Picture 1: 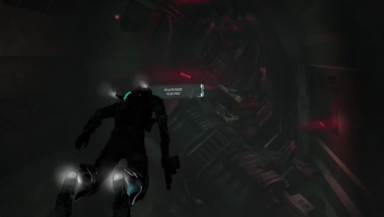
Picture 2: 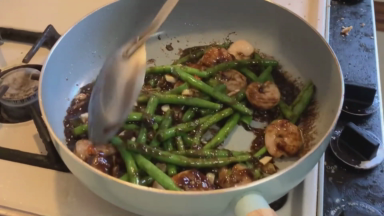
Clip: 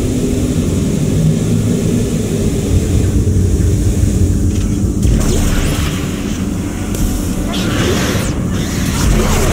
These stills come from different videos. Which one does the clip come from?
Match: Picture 1